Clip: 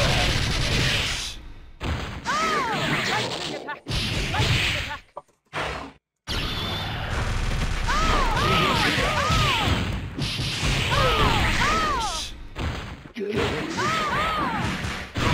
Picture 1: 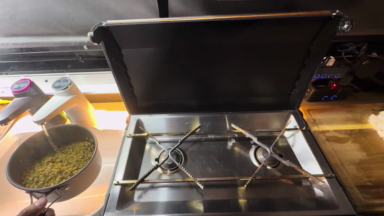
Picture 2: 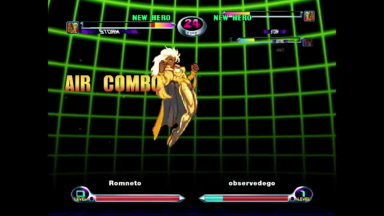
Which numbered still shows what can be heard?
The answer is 2